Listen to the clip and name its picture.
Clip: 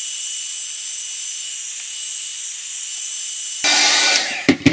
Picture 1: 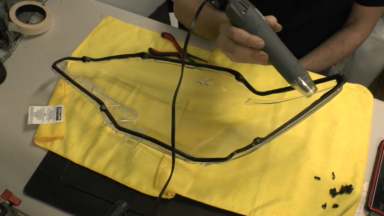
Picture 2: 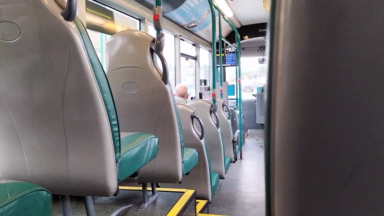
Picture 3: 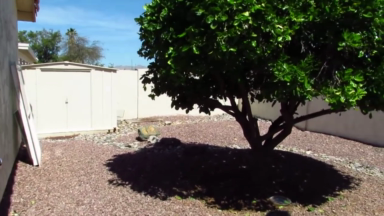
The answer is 1